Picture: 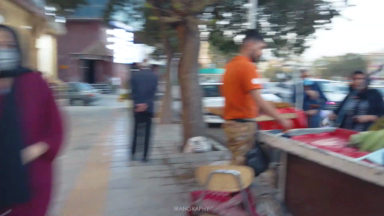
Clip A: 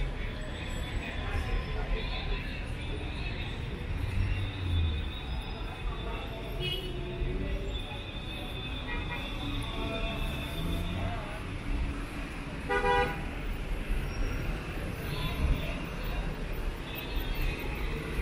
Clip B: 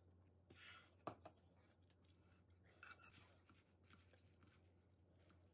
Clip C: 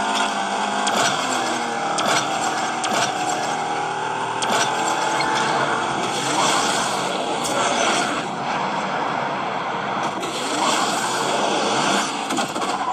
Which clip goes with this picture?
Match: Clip A